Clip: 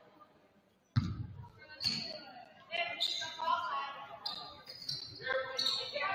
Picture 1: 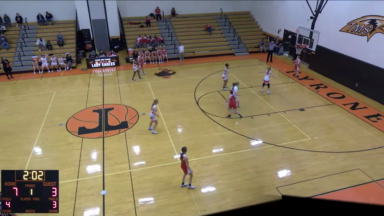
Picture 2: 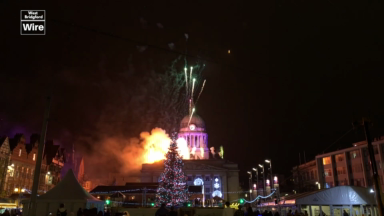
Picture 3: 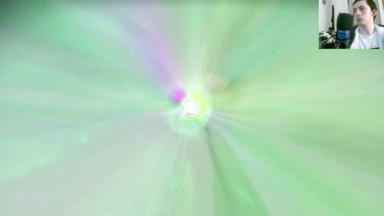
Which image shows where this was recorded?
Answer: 1